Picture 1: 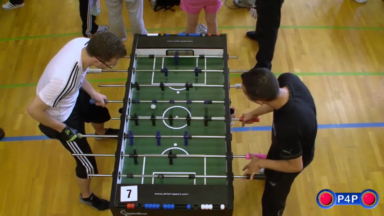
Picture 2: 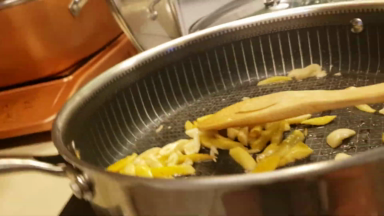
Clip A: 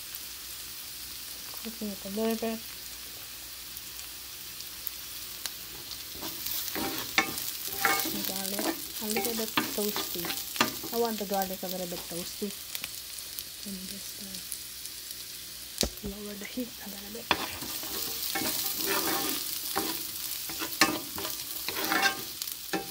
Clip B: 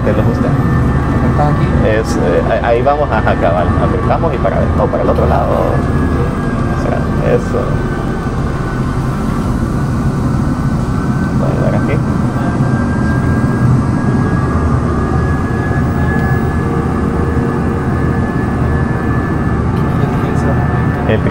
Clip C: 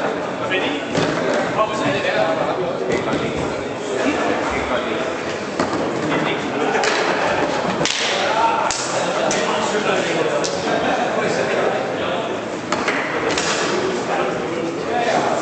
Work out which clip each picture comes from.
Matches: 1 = C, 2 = A